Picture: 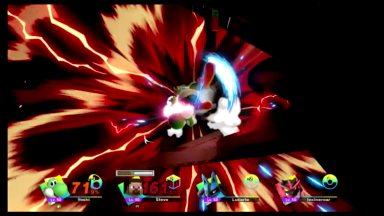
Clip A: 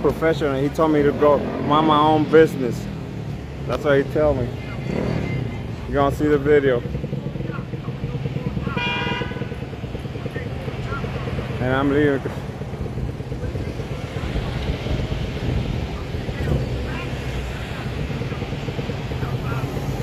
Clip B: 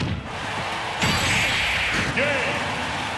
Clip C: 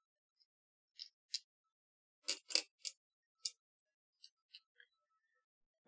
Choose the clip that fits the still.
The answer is B